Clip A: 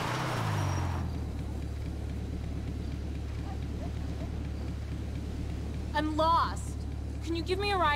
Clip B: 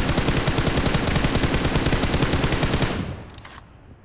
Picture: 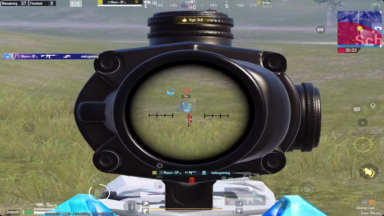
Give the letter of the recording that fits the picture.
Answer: B